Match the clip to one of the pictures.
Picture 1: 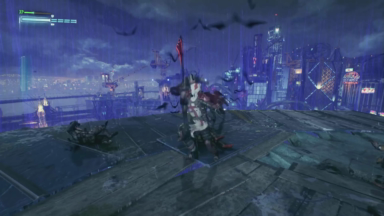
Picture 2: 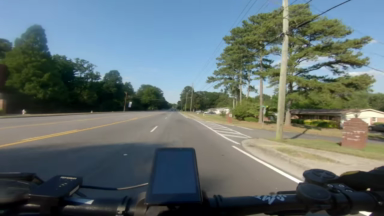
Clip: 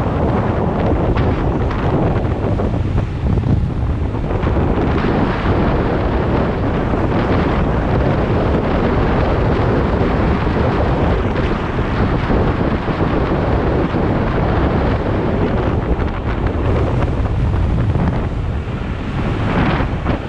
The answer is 2